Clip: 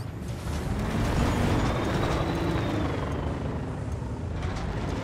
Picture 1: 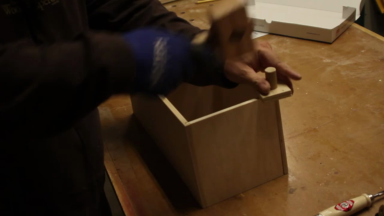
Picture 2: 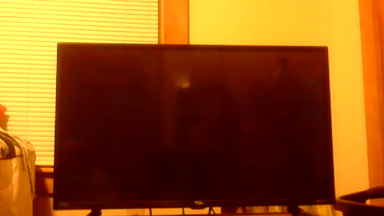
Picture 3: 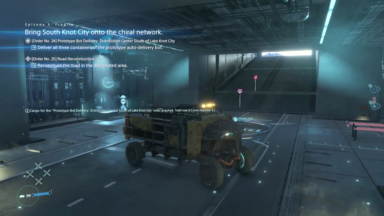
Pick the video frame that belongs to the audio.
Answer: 3